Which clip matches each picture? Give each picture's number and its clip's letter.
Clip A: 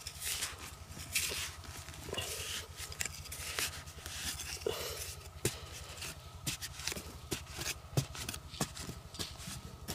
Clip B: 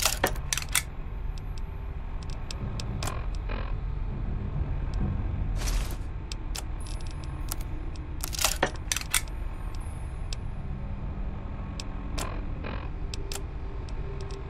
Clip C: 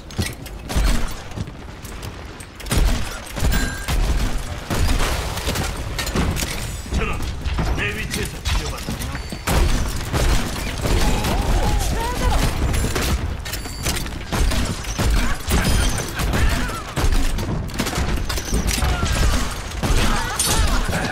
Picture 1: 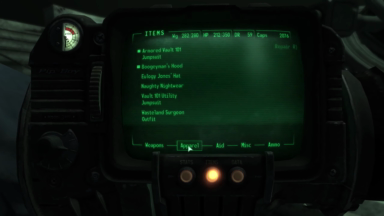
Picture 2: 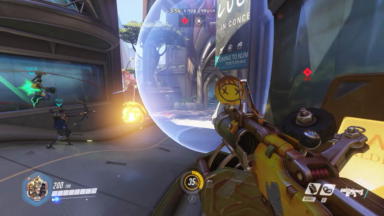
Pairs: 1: B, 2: C